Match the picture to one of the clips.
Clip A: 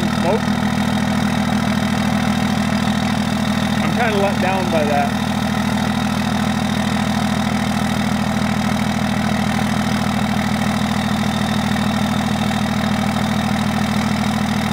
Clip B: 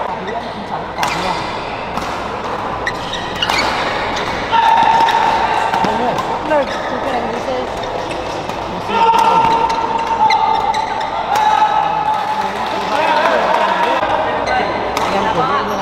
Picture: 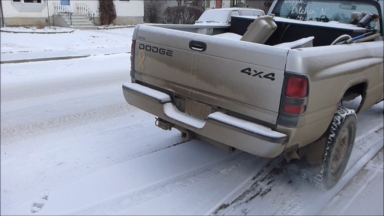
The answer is A